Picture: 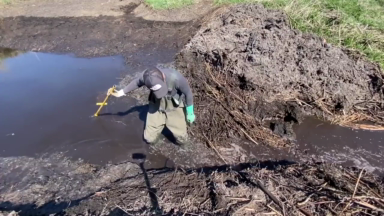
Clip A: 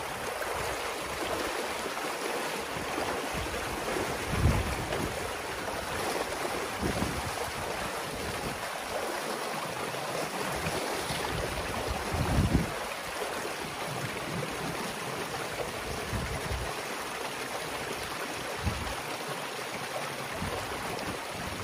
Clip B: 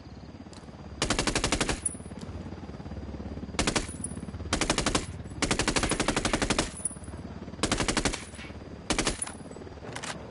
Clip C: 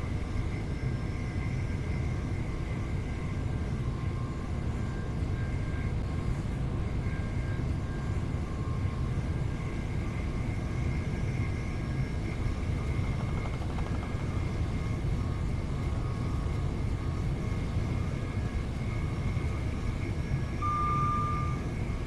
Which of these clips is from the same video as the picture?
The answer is A